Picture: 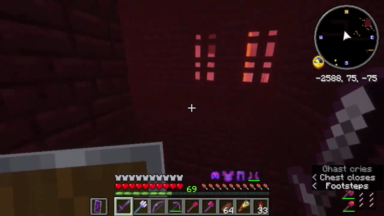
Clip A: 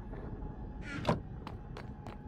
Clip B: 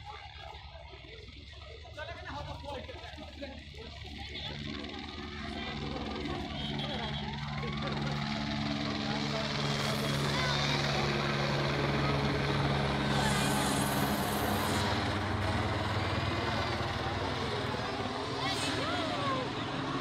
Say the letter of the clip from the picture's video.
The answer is A